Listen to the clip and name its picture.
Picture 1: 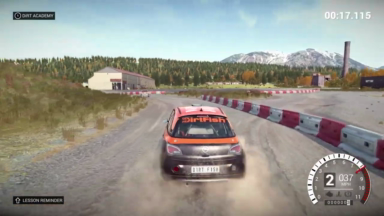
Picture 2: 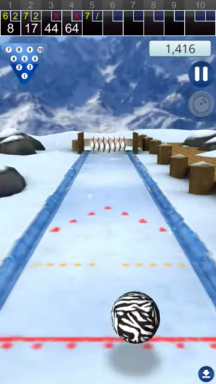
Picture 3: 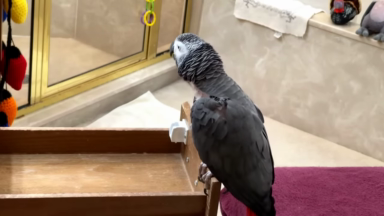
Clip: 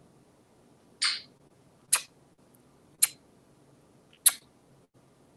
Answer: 3